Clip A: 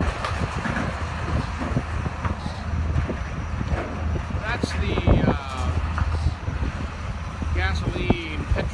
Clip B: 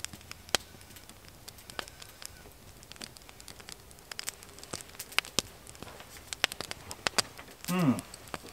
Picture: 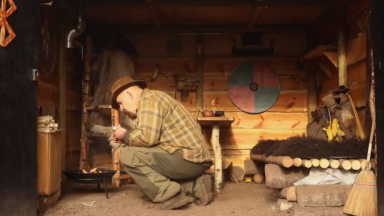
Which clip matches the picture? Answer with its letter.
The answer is B